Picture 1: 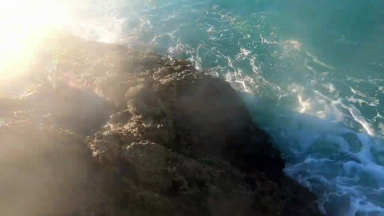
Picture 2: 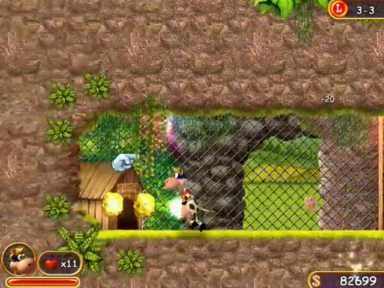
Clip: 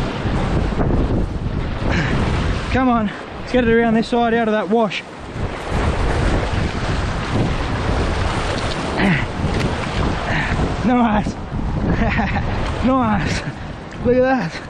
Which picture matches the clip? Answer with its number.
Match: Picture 1